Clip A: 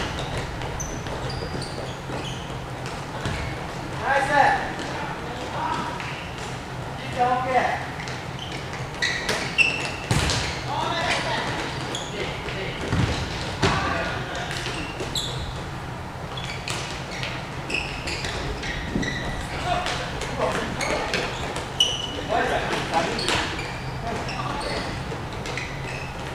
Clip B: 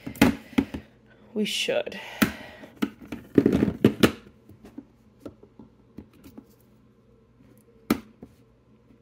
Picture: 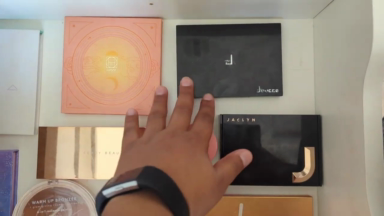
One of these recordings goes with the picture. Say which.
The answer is B